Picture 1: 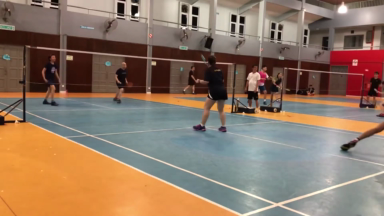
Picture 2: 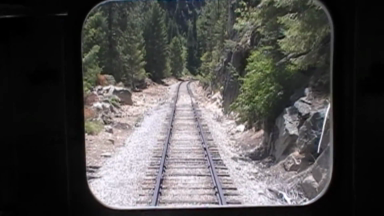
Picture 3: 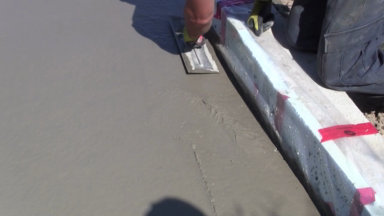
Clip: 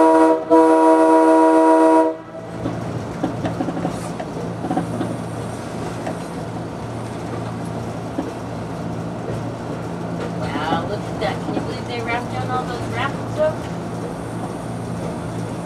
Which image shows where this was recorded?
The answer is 2